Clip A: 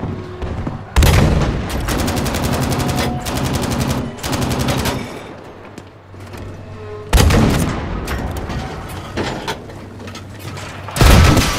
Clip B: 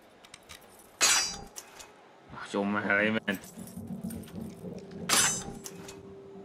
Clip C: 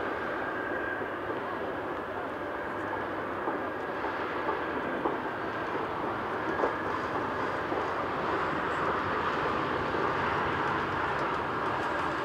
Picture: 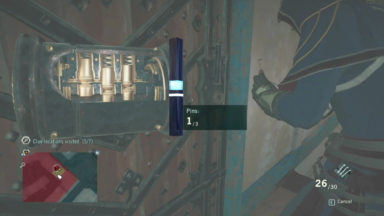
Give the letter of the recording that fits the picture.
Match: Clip B